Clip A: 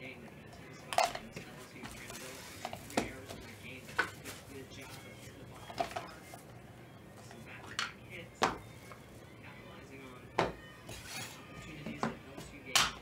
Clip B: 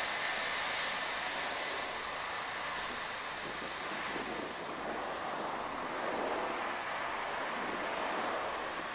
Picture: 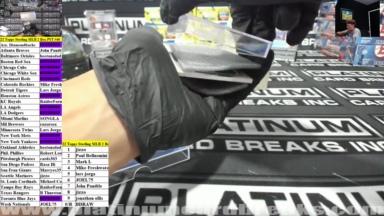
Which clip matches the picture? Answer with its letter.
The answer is A